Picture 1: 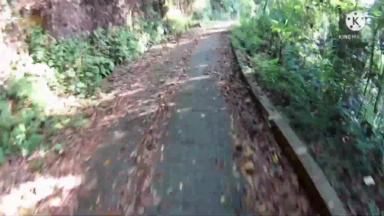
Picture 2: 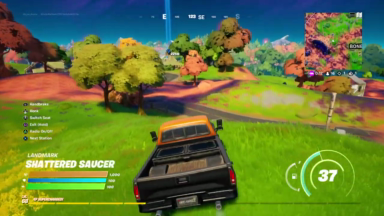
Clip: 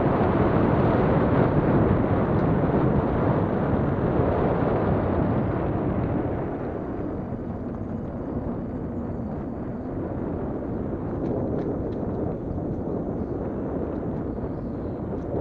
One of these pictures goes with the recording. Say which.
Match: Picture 1